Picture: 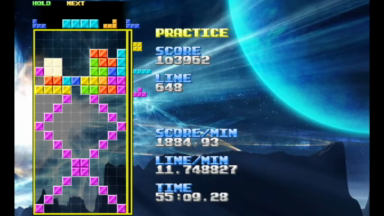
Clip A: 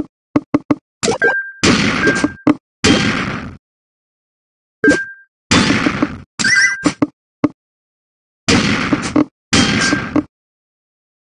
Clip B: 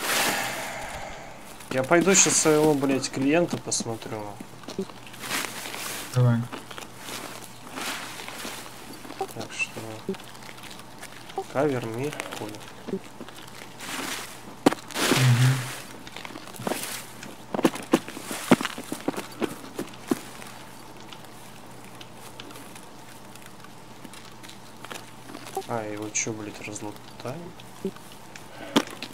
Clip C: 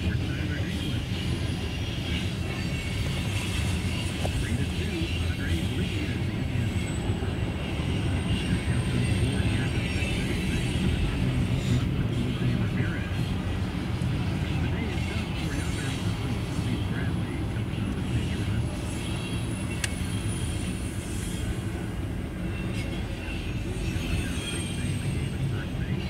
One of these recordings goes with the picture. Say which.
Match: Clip A